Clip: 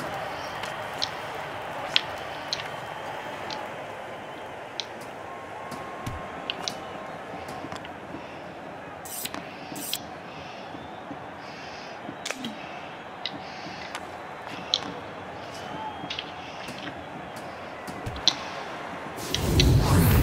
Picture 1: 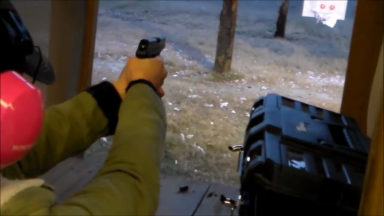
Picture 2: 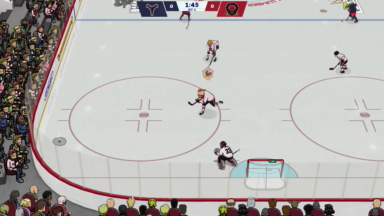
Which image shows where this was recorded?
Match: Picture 2